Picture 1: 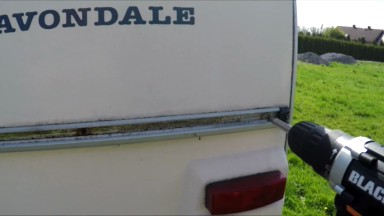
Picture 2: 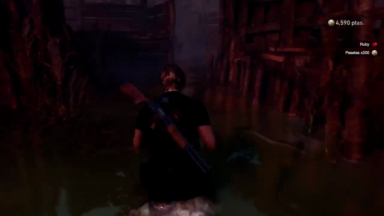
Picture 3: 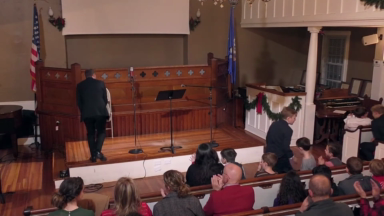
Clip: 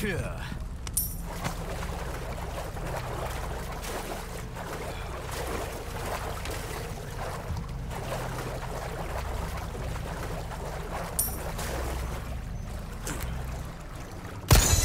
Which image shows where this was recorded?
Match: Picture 2